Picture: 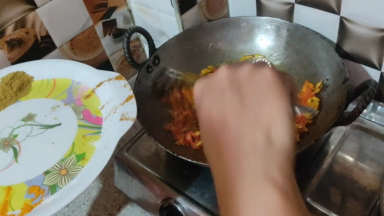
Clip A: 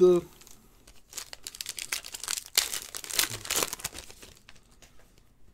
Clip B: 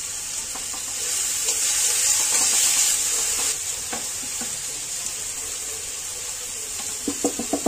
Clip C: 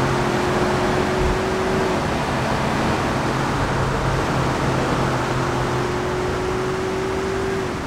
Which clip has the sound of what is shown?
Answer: B